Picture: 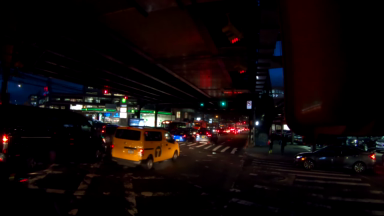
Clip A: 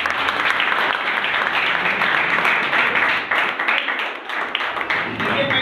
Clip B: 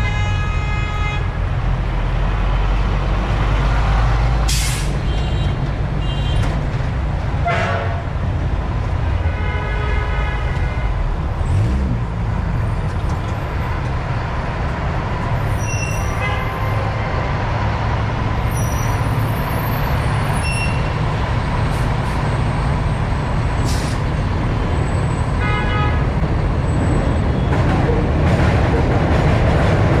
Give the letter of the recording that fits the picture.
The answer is B